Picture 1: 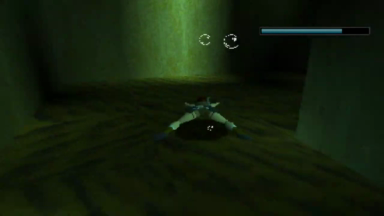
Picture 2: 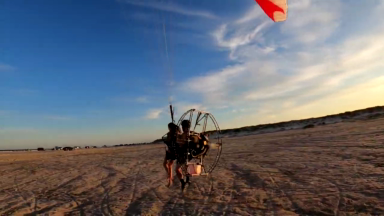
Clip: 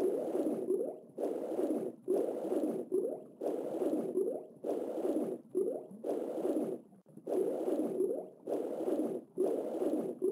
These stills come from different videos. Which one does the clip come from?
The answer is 1